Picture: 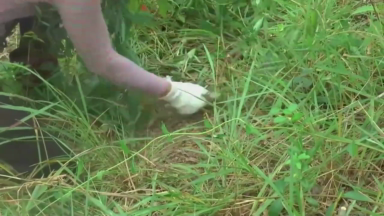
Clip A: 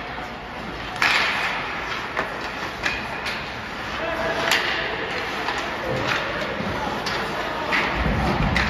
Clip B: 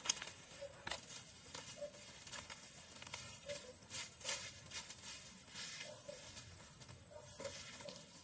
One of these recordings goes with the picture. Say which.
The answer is B